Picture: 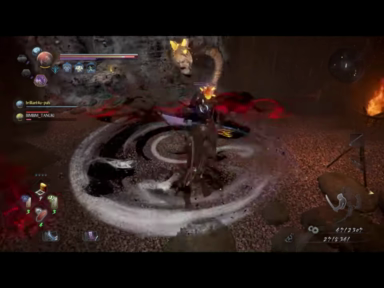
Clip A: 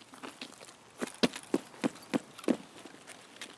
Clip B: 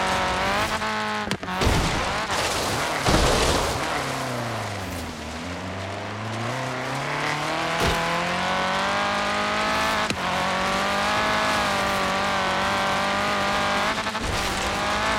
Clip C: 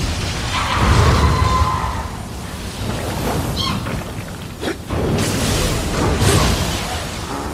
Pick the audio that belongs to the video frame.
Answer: C